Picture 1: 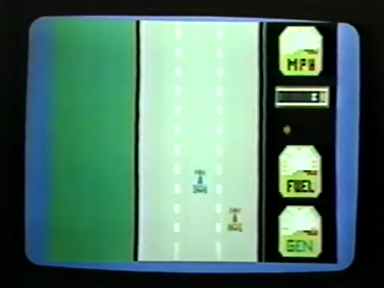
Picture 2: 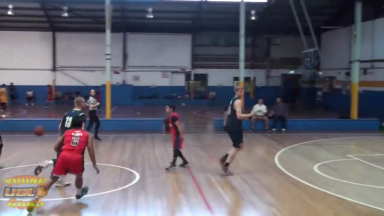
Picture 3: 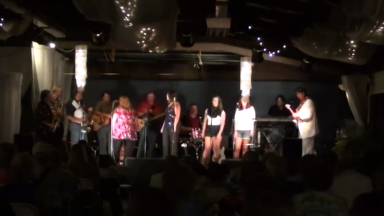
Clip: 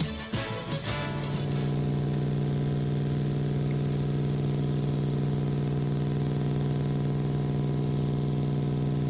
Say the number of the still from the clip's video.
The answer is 1